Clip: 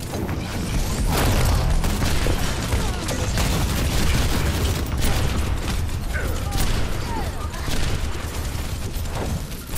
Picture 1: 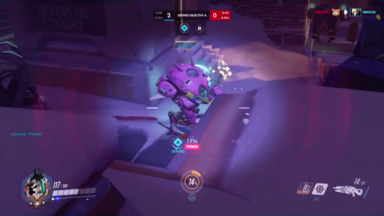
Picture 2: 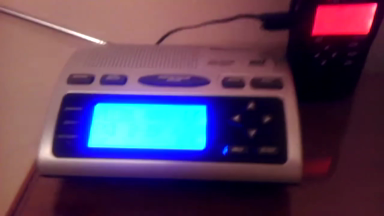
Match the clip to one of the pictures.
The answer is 1